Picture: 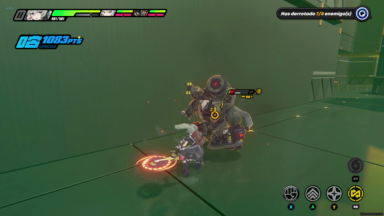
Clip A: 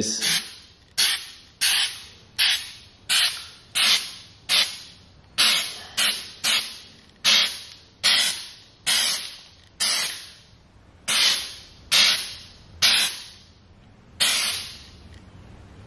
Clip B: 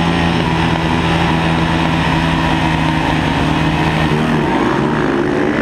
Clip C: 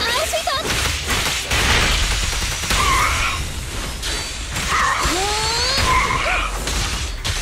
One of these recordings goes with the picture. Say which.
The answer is C